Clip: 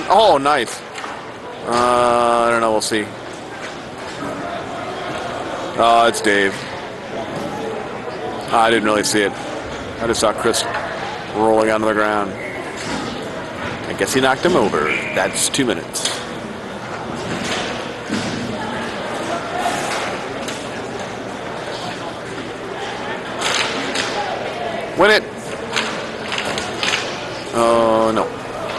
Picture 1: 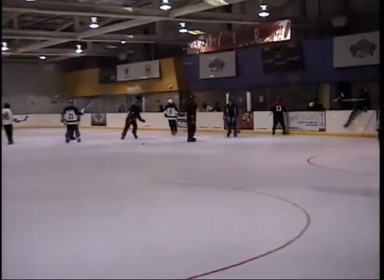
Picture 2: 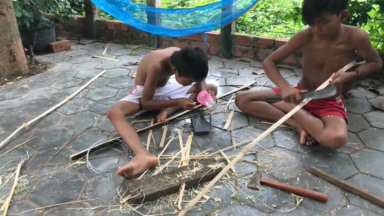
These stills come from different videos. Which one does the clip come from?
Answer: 1